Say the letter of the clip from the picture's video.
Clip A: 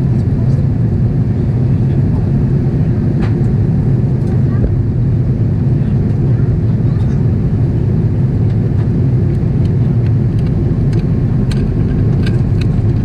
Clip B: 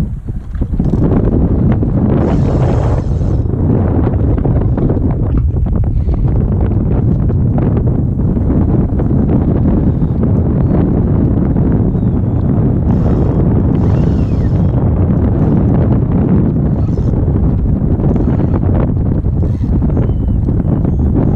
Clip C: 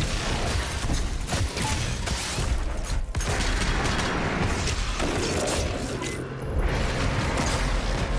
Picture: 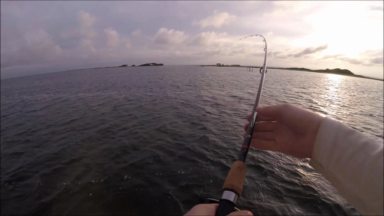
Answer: B